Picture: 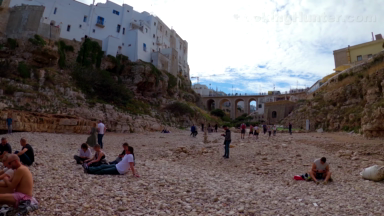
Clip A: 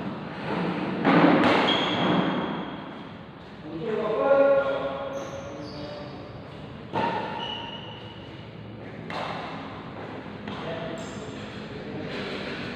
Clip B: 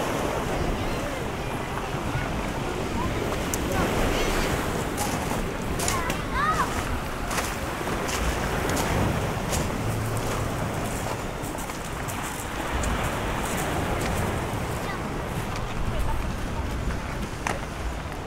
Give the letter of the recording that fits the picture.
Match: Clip B